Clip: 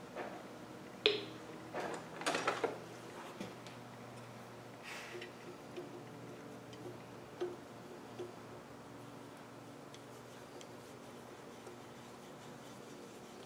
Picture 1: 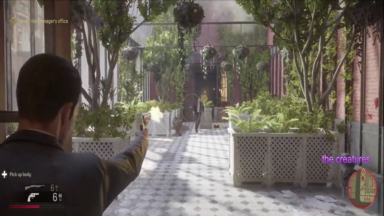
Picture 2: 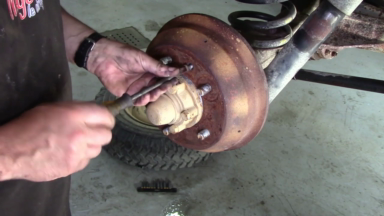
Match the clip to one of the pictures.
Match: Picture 2